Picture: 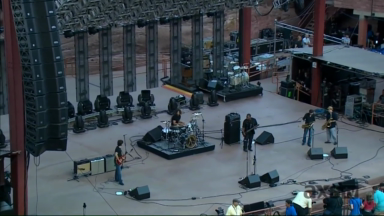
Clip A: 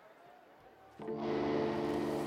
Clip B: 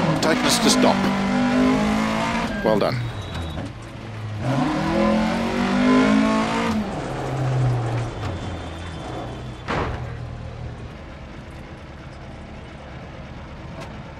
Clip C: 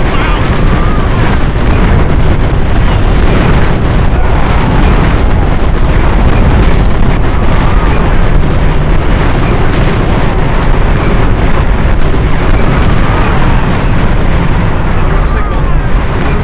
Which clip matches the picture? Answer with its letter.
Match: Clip A